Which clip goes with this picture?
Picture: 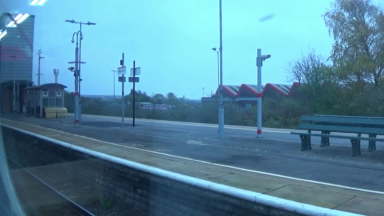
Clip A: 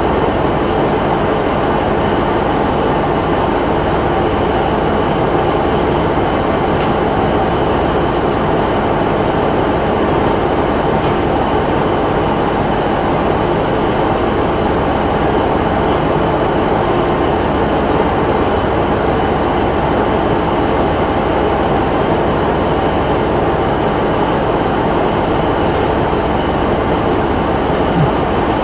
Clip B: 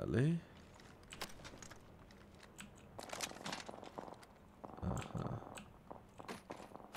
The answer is A